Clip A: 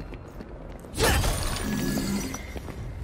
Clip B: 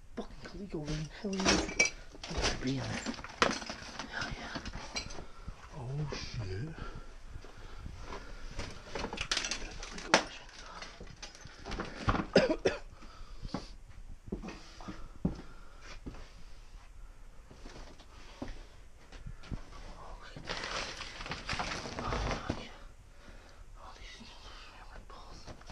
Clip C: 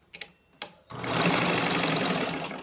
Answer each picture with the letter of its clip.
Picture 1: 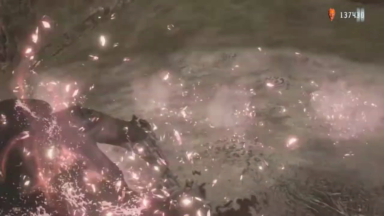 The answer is A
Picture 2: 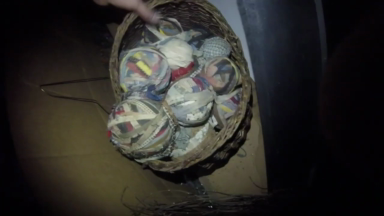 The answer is B